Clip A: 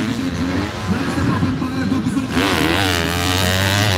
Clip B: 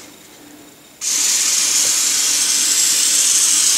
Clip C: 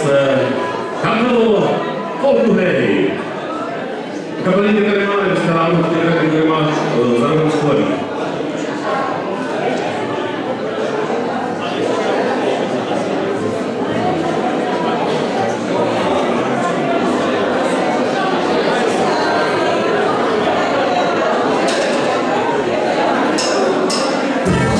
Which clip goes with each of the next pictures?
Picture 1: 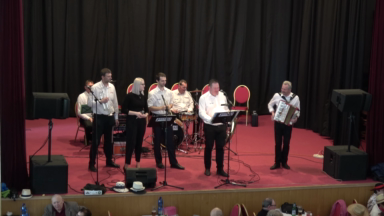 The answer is C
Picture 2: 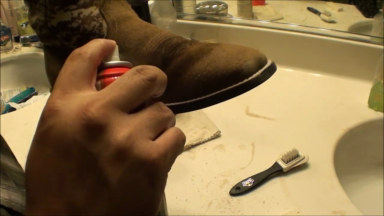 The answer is B